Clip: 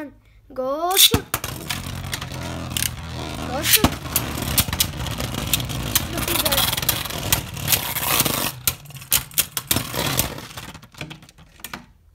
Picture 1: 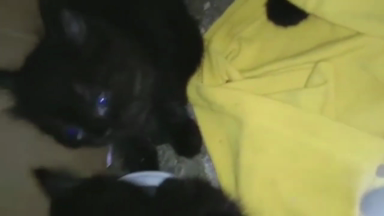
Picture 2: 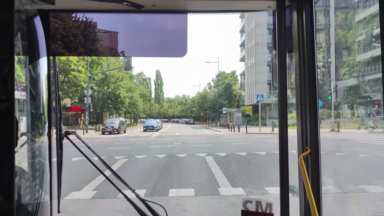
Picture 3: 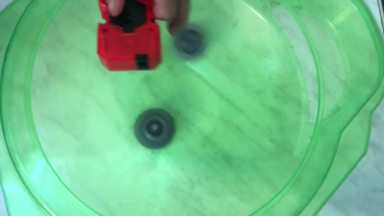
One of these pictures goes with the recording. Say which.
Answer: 3